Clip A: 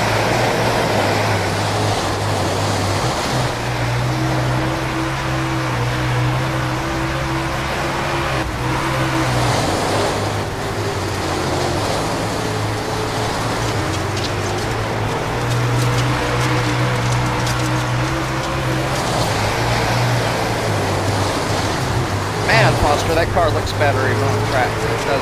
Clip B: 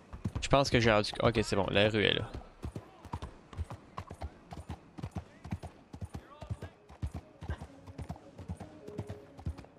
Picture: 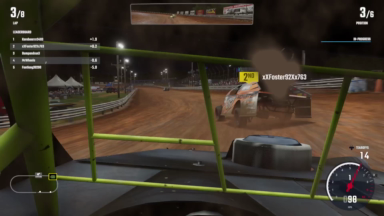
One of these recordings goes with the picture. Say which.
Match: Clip A